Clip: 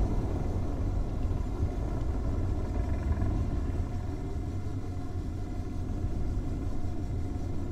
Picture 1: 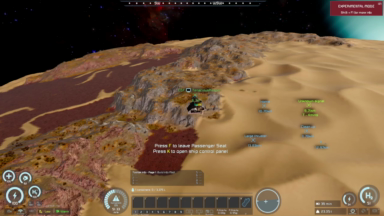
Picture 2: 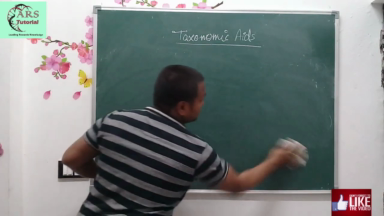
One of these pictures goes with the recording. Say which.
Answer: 1